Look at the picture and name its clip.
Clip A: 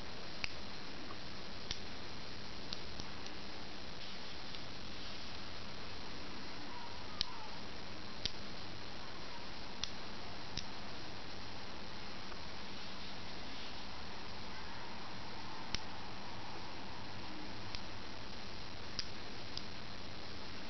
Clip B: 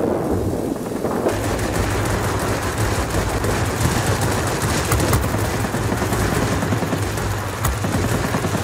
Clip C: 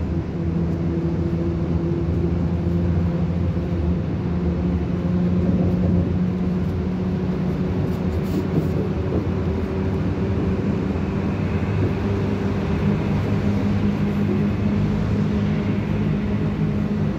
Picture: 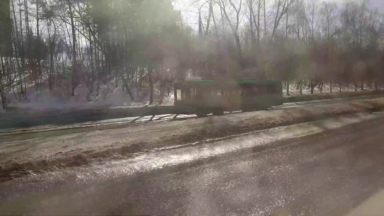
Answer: C